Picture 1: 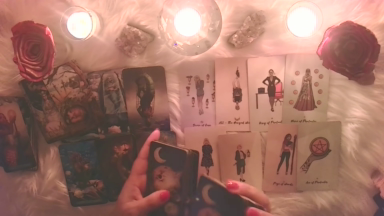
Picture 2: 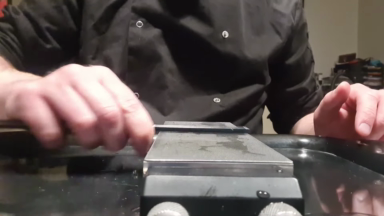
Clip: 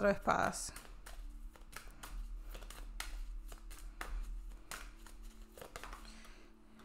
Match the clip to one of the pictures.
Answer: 1